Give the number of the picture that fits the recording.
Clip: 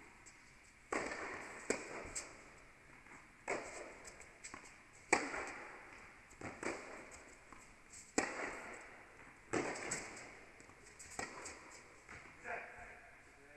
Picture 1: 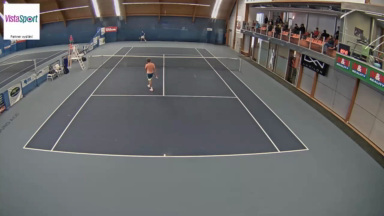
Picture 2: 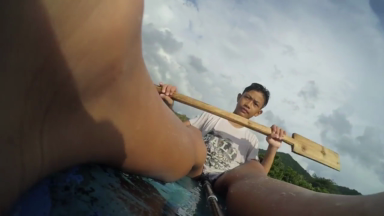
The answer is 1